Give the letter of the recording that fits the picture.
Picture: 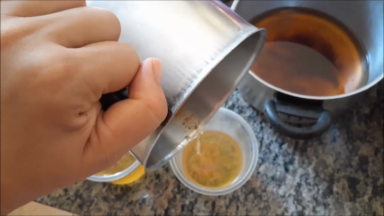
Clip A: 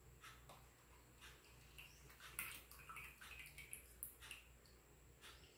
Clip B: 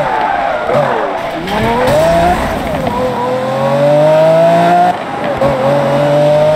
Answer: A